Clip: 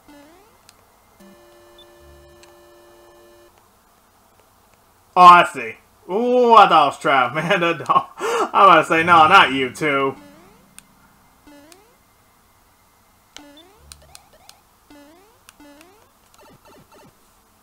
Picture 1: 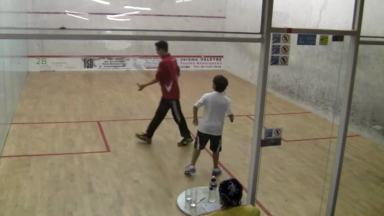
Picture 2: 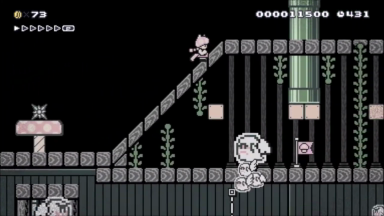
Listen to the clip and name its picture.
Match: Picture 2